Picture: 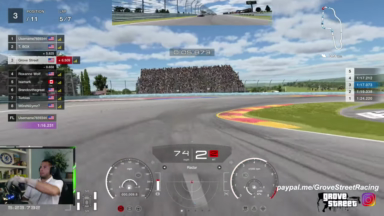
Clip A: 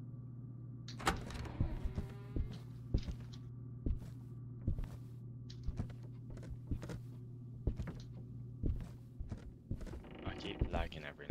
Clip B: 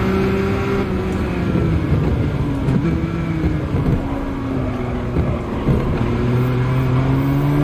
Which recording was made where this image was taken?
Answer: B